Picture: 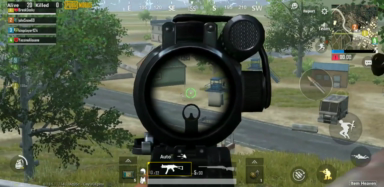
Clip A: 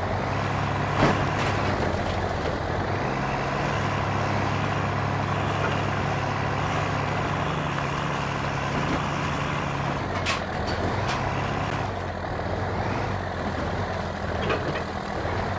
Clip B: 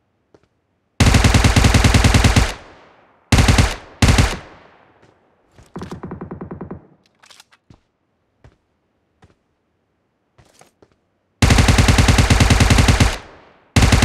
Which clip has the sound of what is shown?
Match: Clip B